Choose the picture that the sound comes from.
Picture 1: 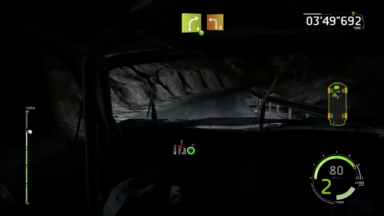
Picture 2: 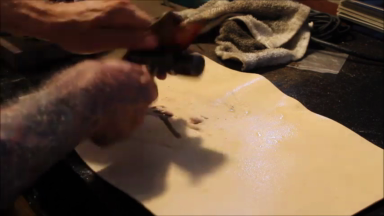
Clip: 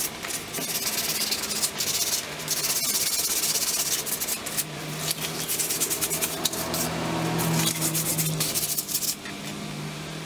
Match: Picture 2